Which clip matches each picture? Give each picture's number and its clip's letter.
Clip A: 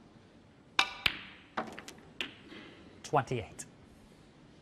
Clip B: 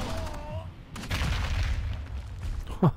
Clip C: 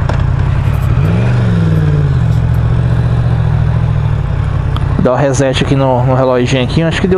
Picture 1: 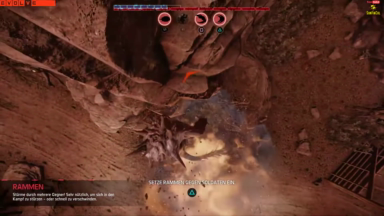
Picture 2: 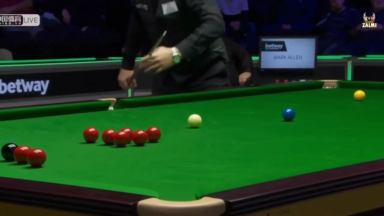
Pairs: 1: B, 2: A